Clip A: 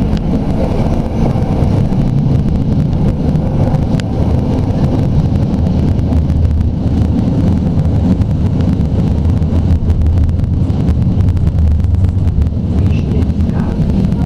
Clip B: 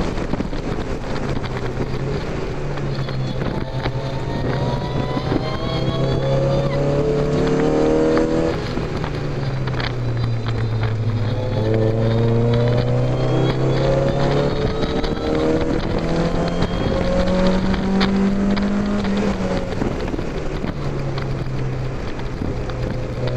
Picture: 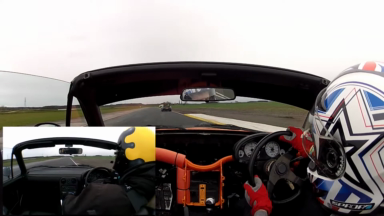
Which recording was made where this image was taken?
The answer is B